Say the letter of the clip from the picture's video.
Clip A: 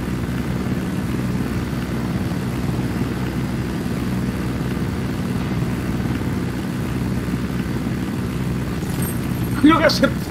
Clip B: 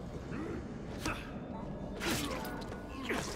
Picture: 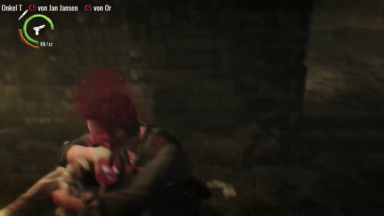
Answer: B